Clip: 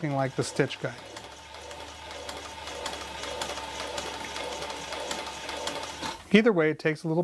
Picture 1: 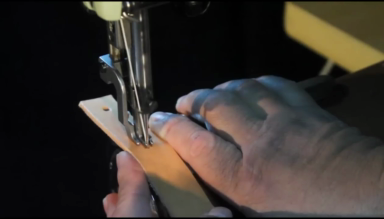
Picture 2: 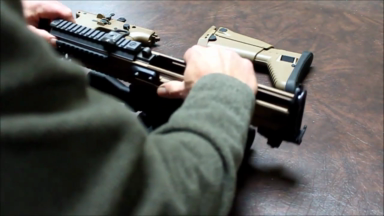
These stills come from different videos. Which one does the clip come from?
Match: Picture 1